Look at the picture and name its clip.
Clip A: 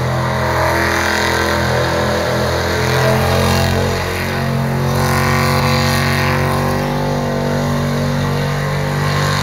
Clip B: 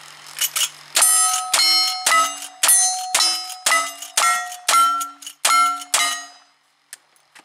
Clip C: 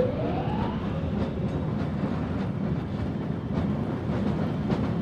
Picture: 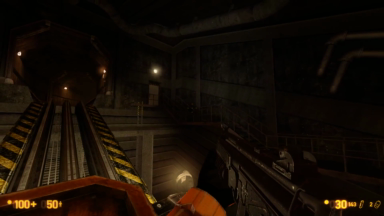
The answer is C